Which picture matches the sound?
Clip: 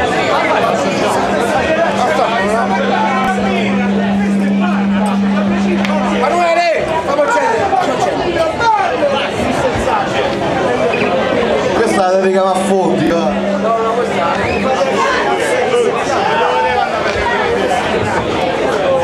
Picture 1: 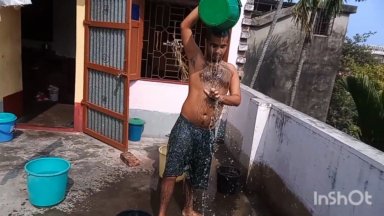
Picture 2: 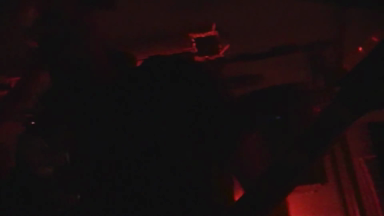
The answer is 2